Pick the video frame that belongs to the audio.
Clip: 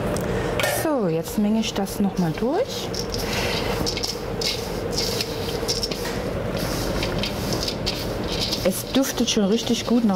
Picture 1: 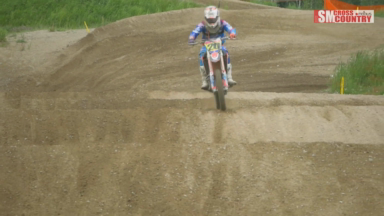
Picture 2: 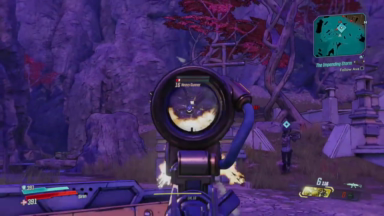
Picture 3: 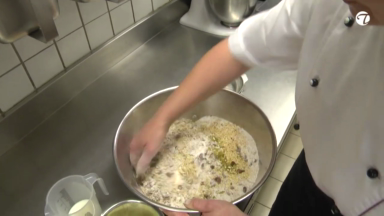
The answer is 3